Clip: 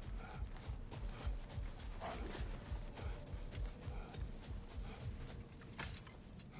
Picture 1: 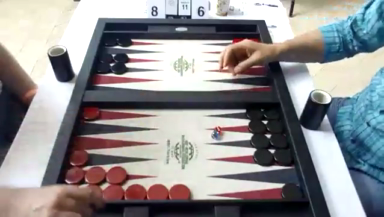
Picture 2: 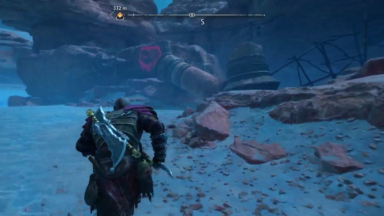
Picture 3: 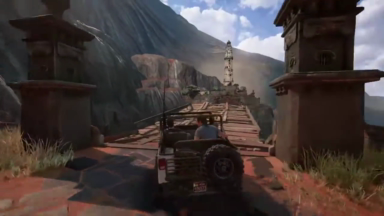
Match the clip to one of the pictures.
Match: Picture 2